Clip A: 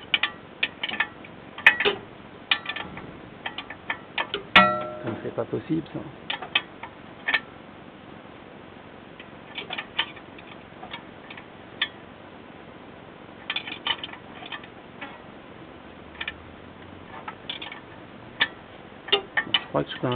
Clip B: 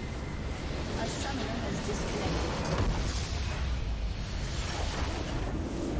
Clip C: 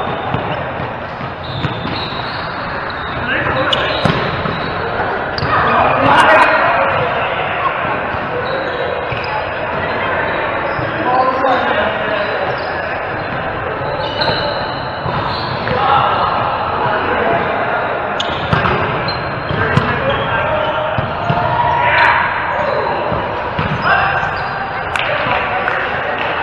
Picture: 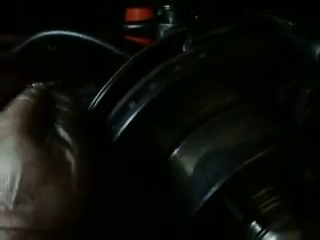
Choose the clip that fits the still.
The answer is A